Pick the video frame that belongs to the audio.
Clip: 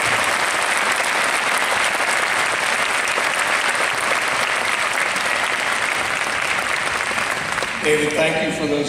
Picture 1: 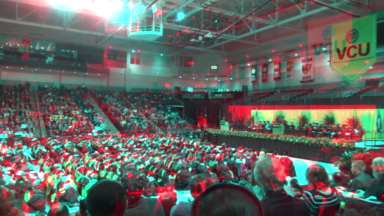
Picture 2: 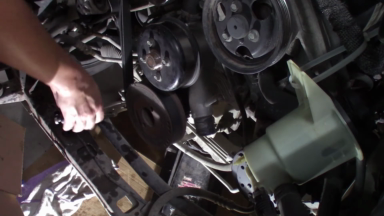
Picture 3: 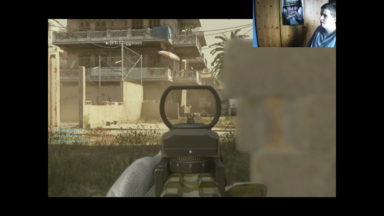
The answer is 1